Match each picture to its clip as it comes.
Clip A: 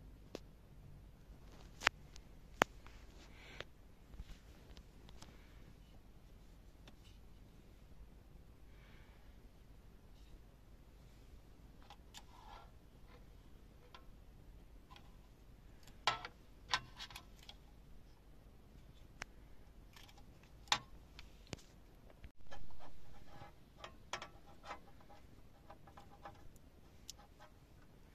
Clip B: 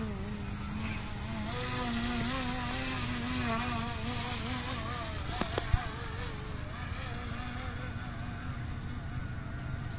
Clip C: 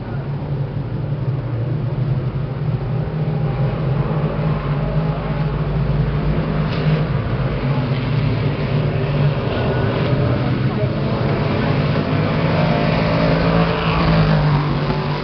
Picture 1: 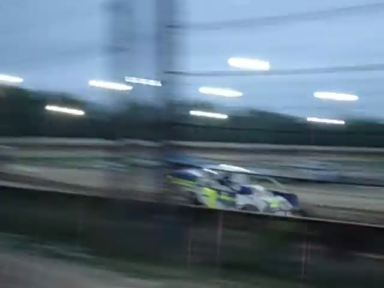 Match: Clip C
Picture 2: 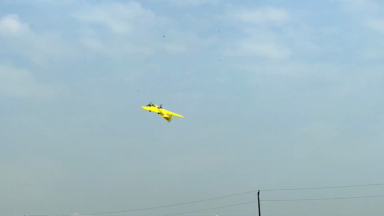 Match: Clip B